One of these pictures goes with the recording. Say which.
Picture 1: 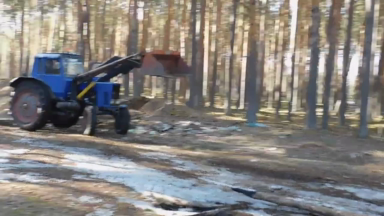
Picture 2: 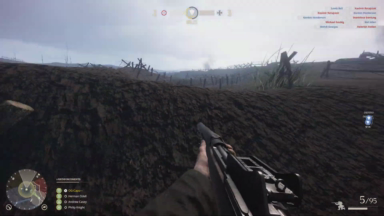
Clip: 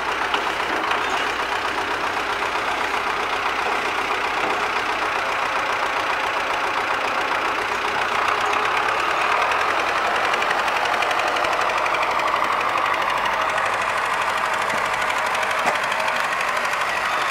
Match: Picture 1